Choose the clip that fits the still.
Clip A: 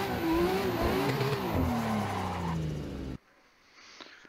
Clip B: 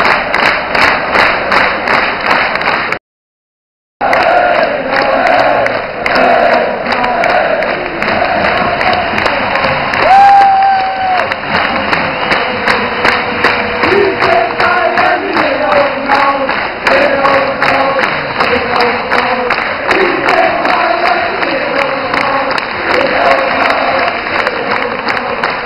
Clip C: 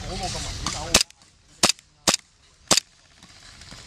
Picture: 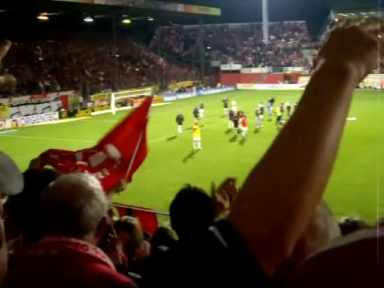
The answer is B